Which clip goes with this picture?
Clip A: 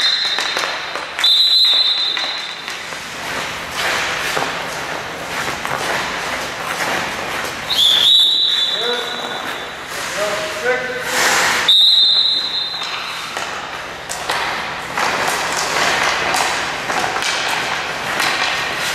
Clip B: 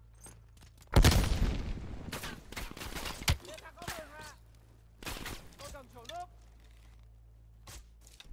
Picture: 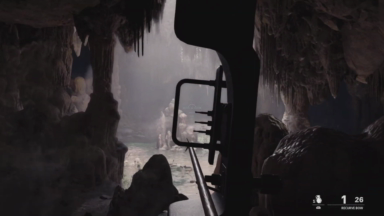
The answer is B